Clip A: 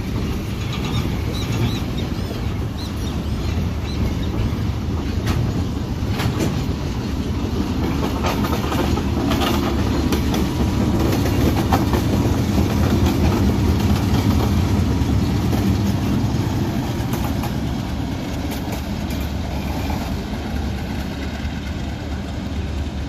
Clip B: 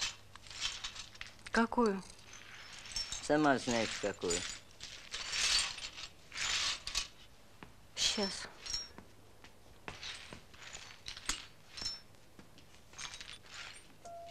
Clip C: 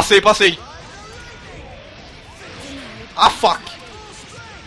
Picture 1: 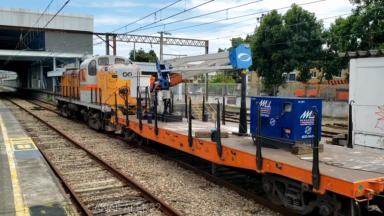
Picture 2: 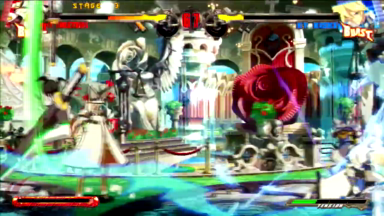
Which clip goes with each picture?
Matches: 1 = A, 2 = C